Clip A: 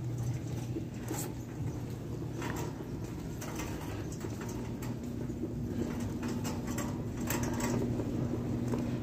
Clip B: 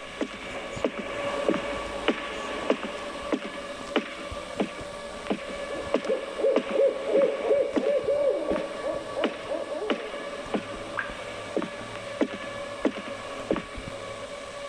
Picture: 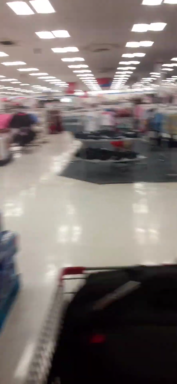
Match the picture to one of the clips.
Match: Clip A